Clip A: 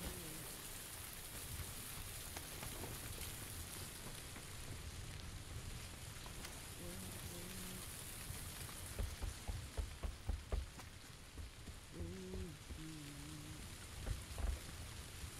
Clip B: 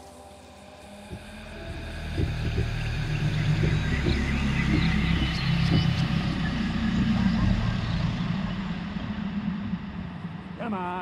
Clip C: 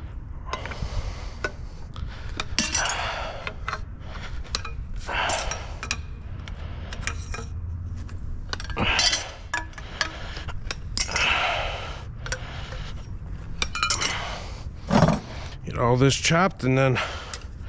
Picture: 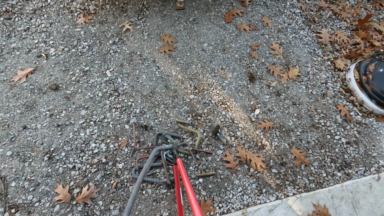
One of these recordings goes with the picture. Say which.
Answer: C